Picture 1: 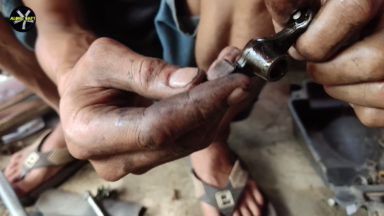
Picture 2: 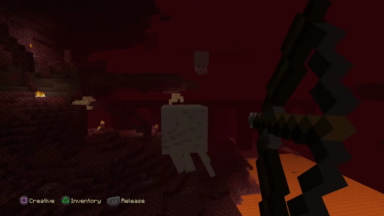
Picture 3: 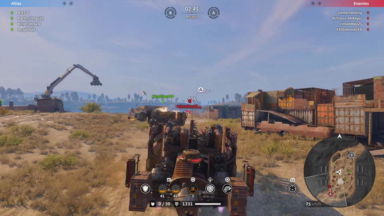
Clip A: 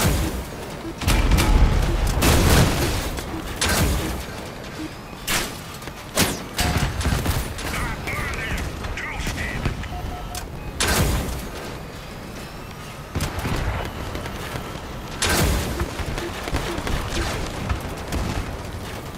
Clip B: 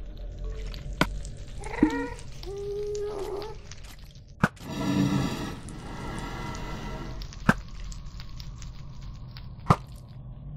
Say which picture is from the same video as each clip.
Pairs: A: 3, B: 2